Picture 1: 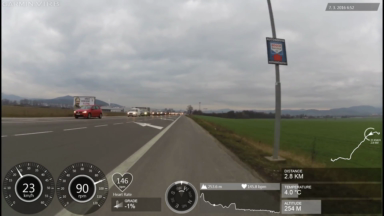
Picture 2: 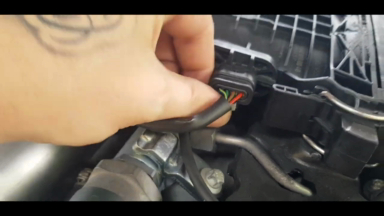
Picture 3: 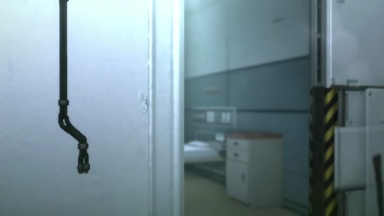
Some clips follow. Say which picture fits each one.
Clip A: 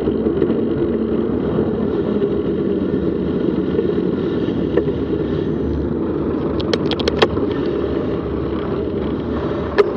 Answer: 1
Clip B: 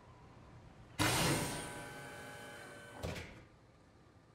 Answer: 3